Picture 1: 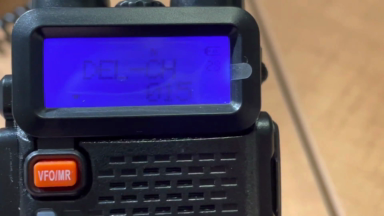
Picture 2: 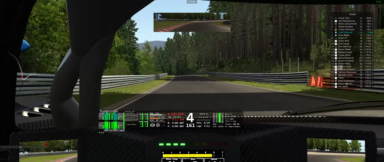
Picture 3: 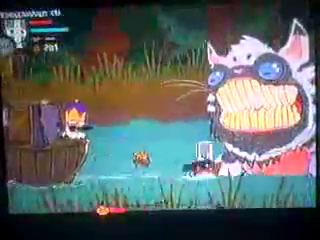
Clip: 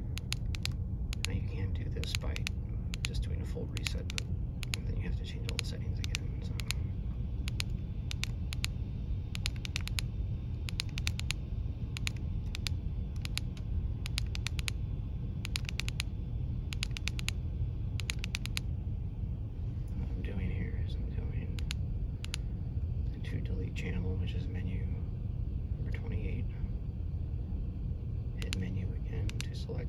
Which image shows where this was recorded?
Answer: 1